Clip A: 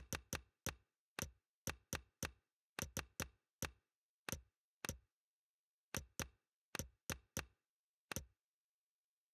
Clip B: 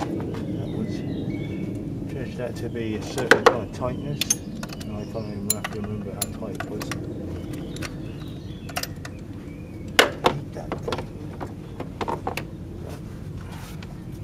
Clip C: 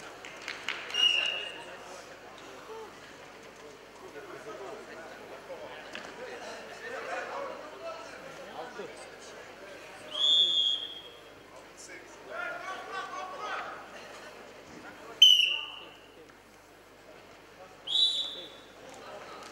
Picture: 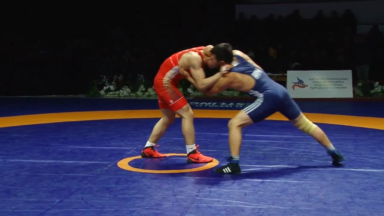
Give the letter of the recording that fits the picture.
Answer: C